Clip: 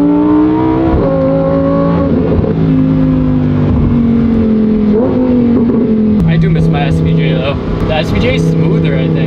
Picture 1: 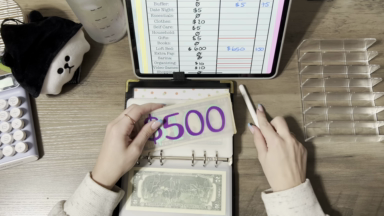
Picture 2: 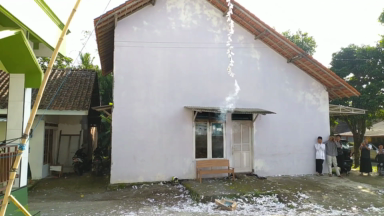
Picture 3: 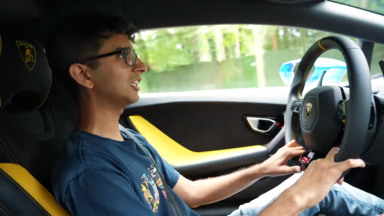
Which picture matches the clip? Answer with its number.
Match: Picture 3